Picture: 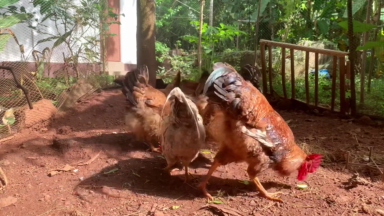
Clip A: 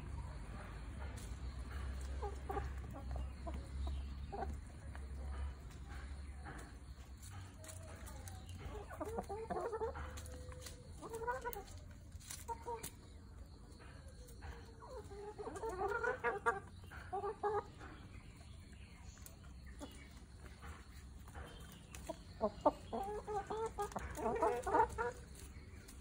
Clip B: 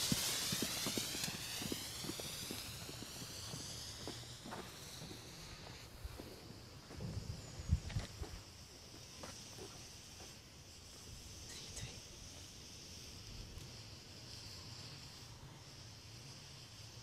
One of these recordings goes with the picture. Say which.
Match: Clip A